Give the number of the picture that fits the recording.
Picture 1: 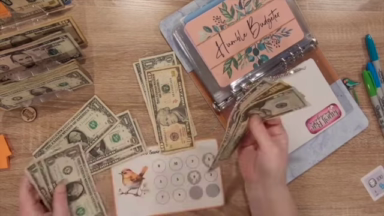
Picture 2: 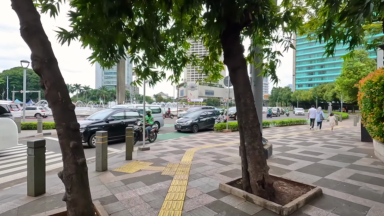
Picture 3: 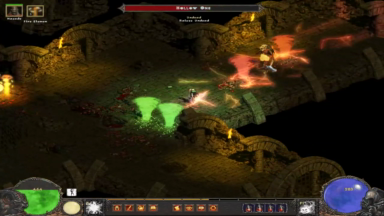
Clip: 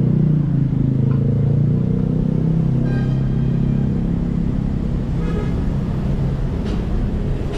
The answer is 2